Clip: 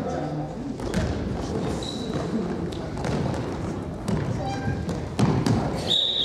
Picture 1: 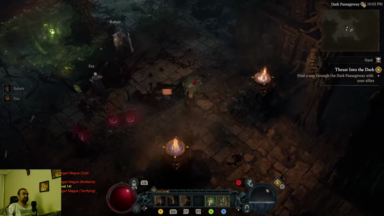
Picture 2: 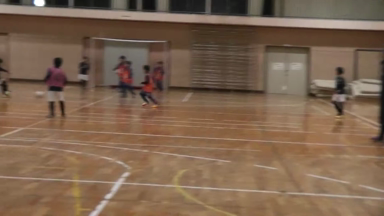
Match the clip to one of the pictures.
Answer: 2